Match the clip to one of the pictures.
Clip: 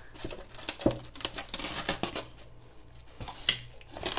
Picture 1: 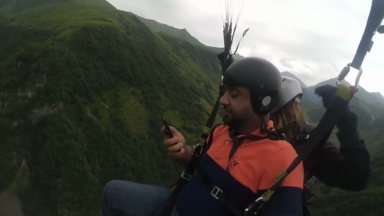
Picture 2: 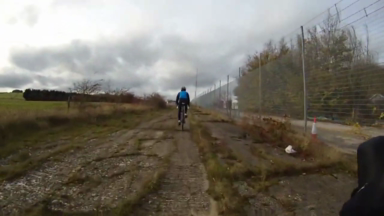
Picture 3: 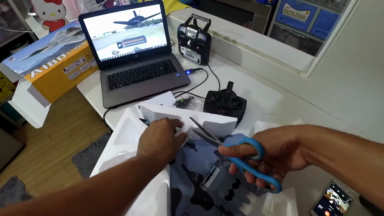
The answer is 3